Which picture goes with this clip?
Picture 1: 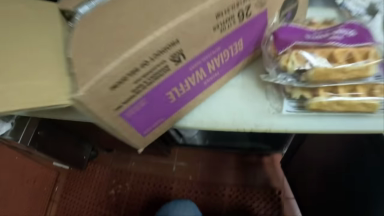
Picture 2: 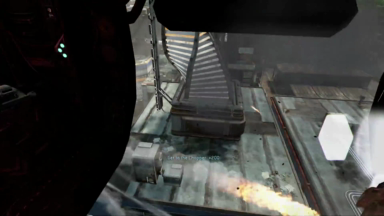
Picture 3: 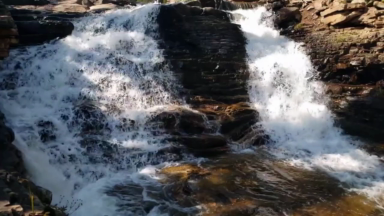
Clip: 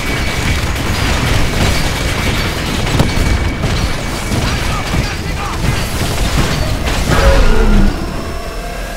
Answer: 2